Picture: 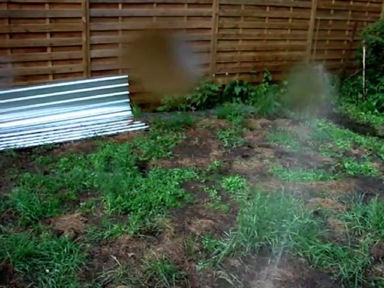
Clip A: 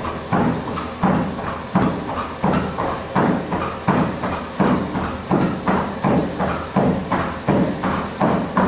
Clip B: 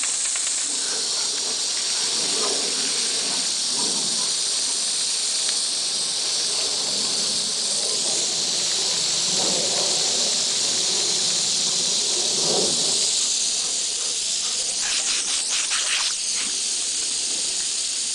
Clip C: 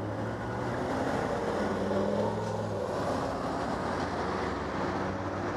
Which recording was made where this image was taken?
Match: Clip B